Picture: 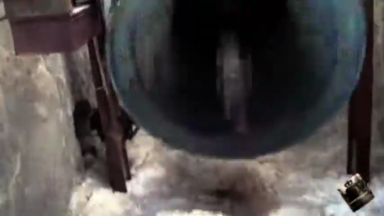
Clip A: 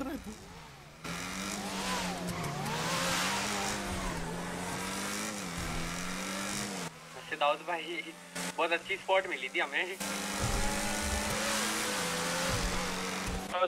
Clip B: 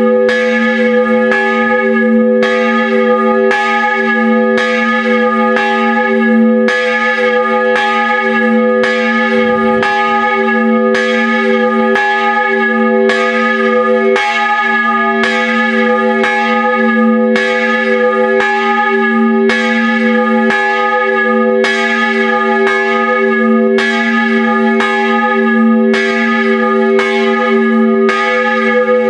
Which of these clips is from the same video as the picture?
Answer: B